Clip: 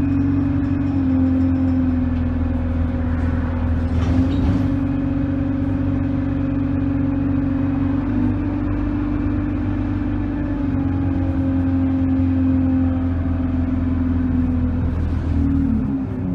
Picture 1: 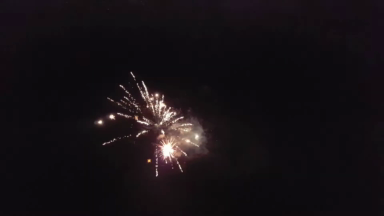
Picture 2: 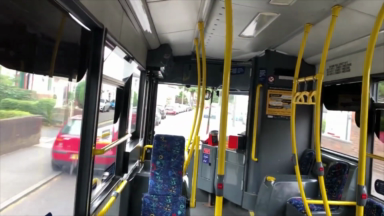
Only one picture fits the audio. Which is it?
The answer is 2